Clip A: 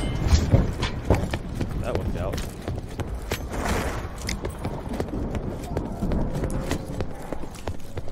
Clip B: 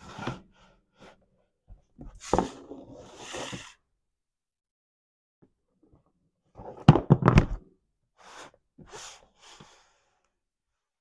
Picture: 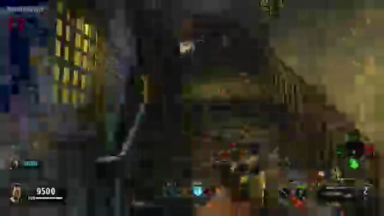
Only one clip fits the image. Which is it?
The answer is A